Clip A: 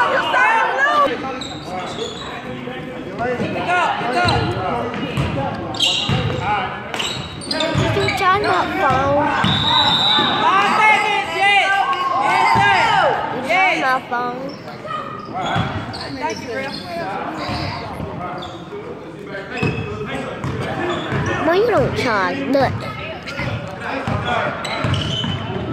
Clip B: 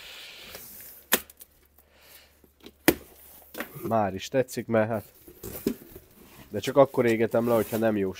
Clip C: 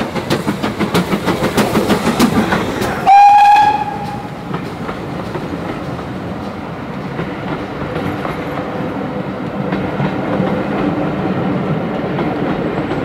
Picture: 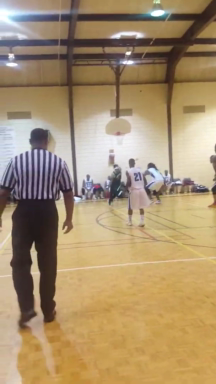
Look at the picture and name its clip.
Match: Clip A